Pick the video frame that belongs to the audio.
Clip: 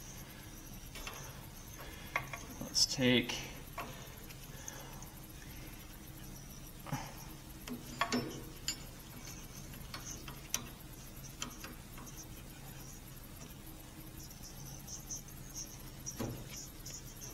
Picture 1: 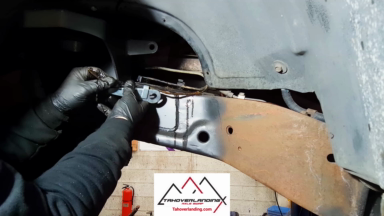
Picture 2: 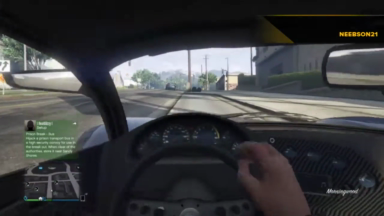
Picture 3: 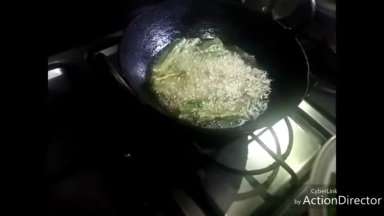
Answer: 1